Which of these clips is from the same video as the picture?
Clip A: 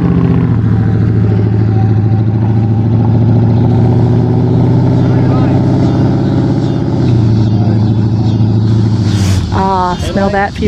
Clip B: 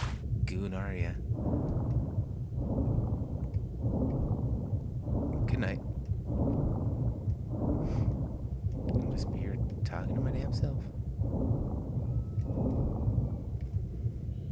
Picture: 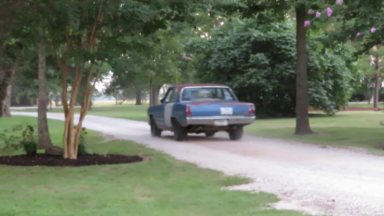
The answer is A